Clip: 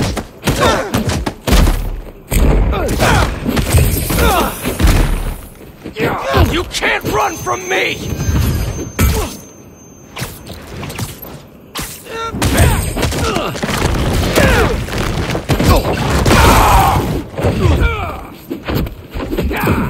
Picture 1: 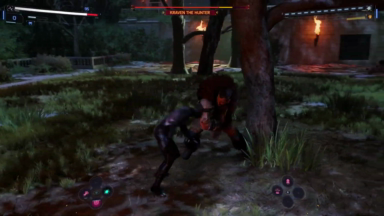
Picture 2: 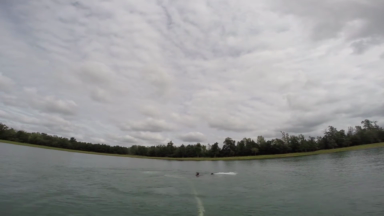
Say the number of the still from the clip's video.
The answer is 1